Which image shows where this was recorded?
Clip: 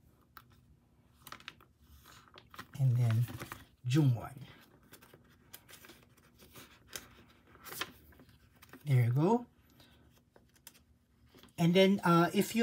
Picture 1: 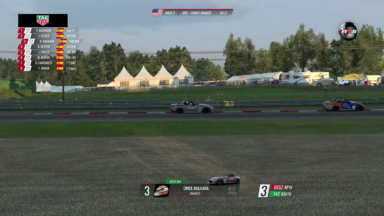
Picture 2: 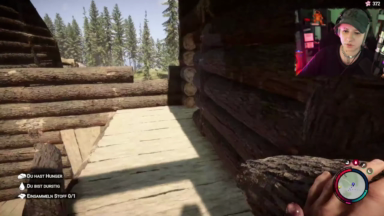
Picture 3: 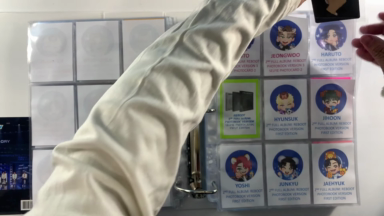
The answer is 3